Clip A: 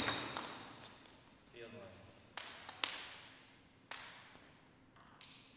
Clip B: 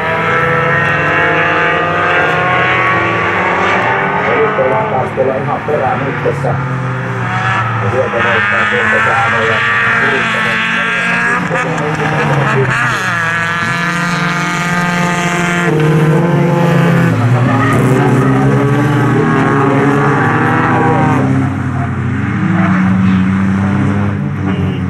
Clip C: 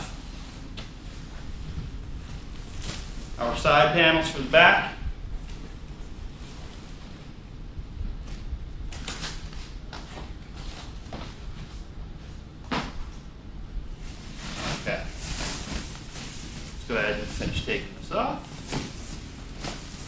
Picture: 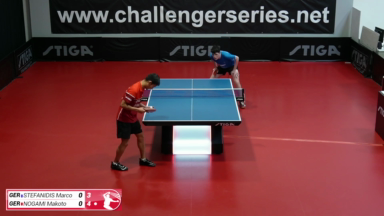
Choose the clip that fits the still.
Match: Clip A